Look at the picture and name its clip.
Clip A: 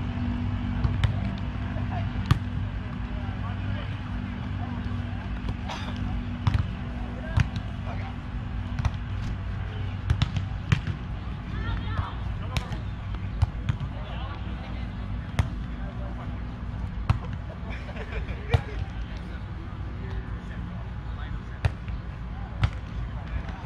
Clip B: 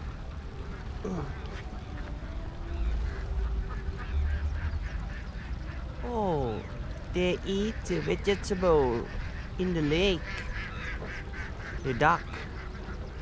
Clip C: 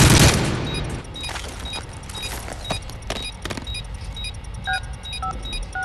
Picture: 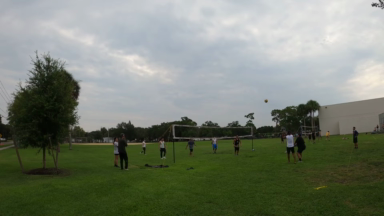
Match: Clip A